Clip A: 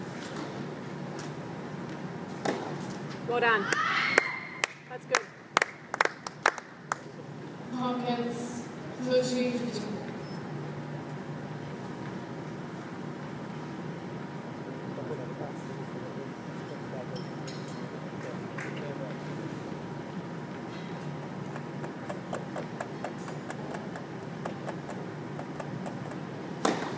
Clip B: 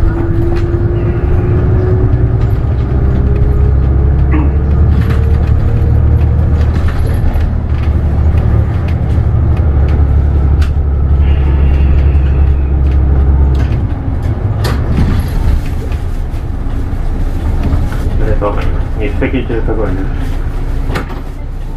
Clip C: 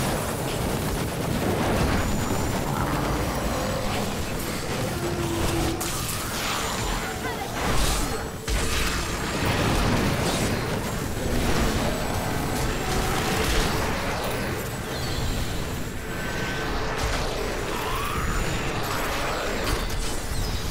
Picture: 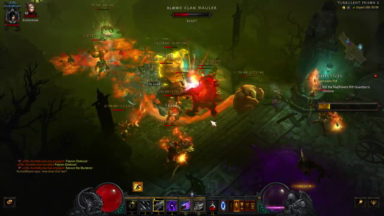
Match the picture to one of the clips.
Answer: C